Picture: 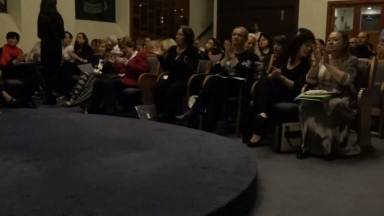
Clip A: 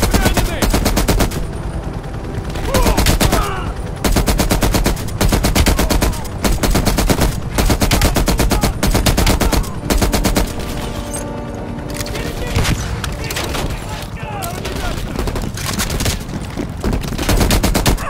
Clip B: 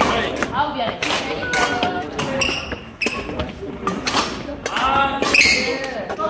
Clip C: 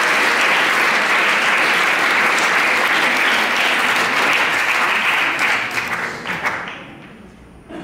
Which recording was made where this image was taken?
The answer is C